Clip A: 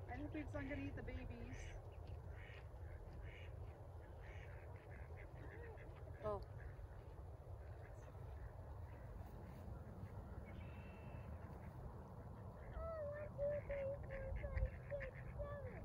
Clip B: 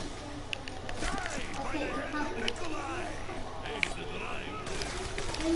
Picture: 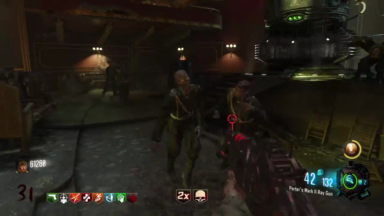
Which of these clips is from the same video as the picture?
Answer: B